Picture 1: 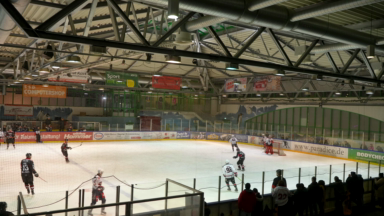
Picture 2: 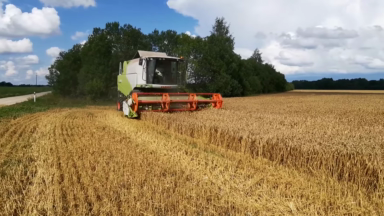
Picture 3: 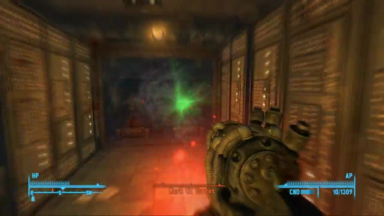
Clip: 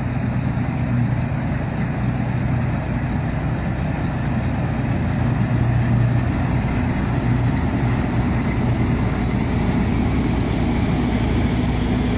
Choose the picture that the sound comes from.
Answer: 2